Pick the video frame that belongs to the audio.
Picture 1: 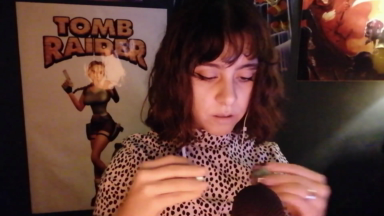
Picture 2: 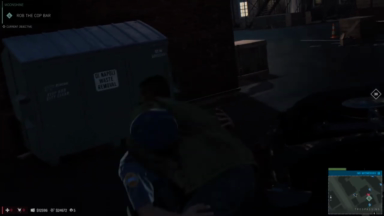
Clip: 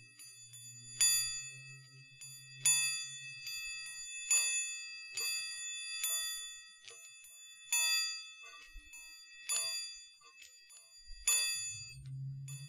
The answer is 1